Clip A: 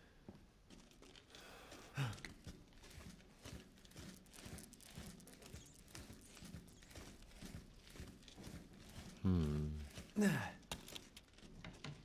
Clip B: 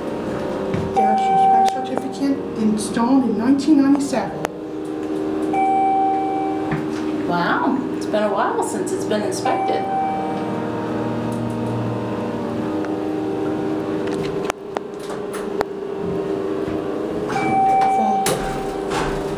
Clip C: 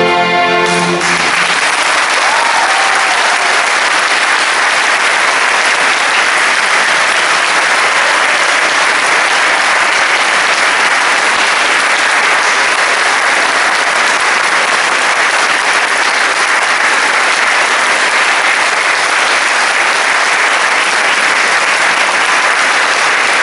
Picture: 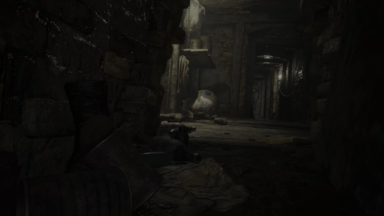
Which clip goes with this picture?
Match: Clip A